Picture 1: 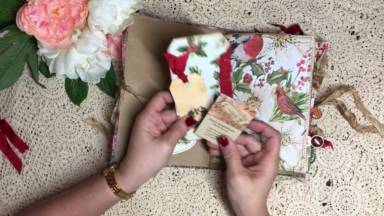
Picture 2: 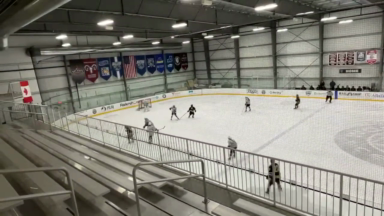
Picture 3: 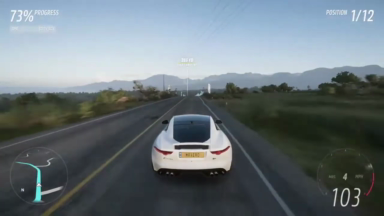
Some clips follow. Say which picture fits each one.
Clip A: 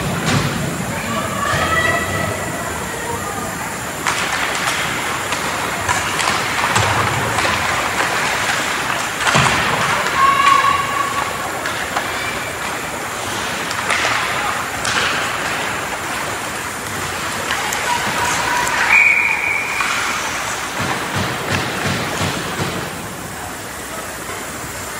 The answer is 2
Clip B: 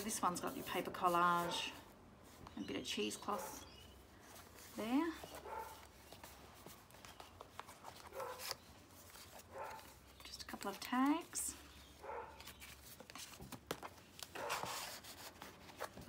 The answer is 1